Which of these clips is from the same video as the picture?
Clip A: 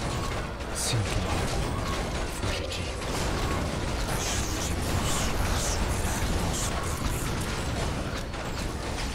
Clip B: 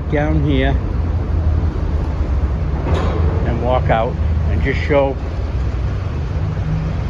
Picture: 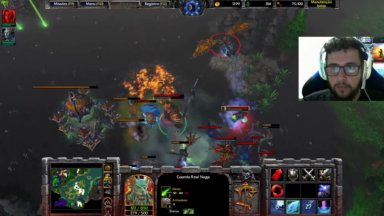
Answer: A